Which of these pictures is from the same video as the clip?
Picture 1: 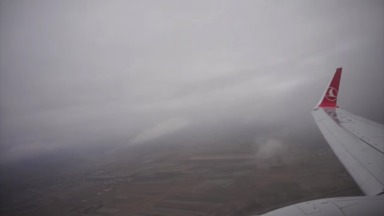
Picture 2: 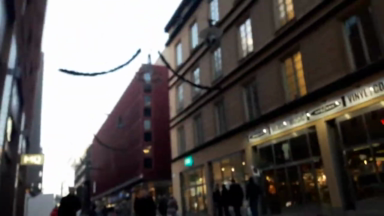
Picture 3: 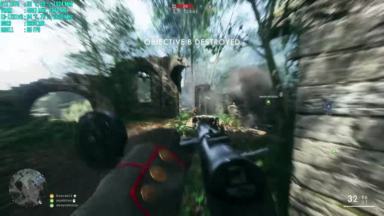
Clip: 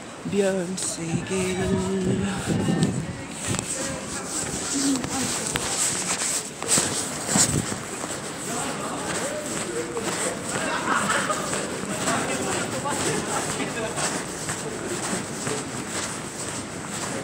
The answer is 2